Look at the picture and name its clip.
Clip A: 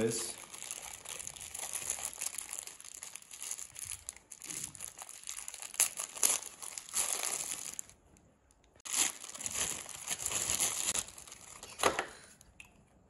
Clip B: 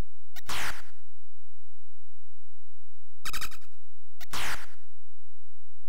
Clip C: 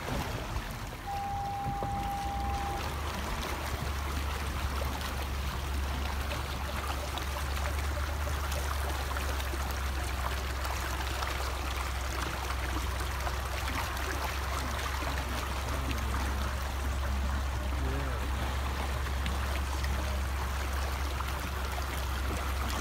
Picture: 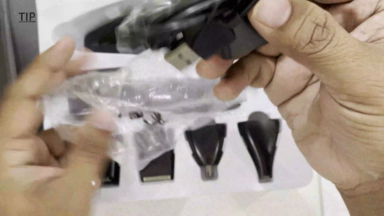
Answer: A